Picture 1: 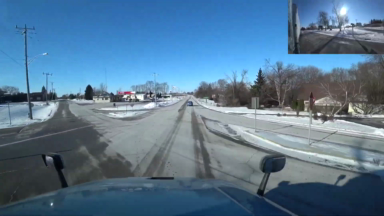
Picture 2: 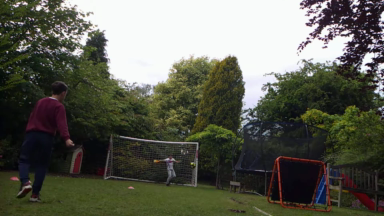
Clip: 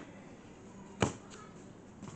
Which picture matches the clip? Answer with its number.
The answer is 2